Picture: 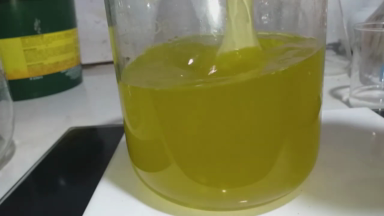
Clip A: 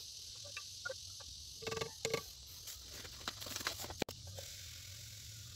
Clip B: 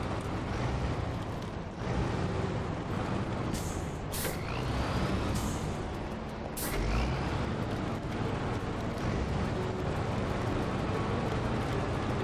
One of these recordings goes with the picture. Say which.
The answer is A